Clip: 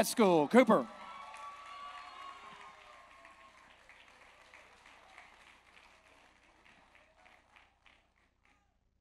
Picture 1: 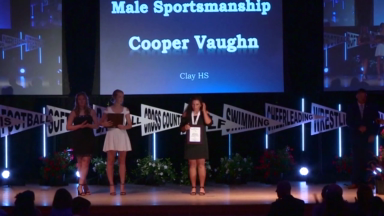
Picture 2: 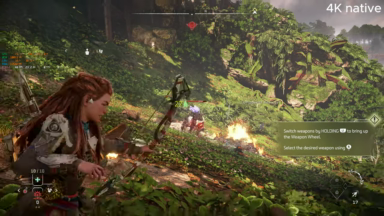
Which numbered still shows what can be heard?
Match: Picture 1